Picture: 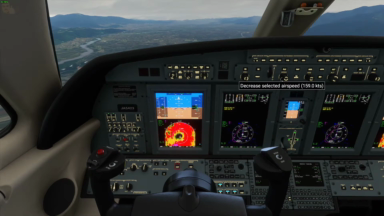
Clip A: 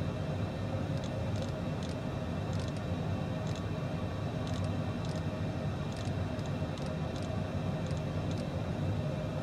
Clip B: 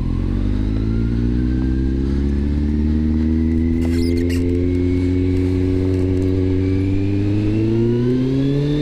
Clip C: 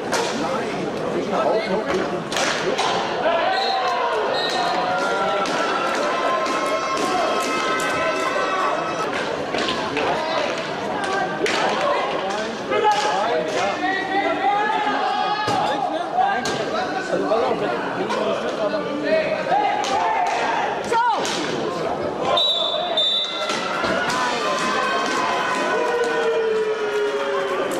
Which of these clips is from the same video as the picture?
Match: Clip A